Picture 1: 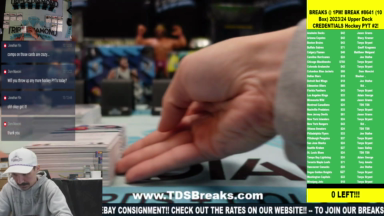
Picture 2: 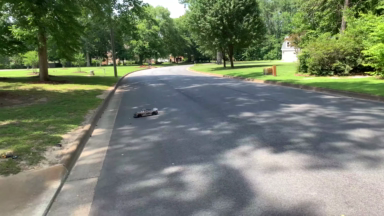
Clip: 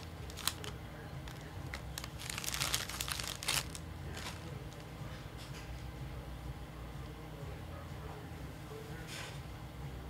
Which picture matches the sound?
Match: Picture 1